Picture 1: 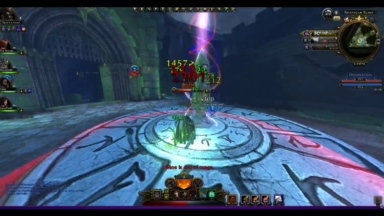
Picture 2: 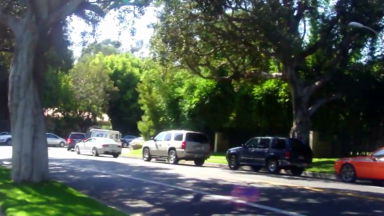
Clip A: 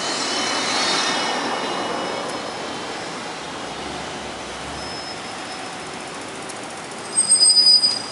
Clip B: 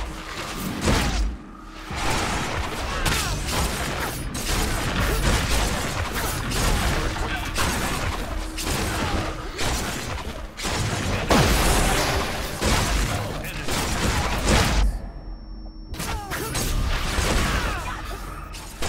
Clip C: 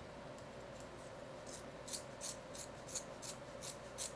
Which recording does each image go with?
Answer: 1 B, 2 A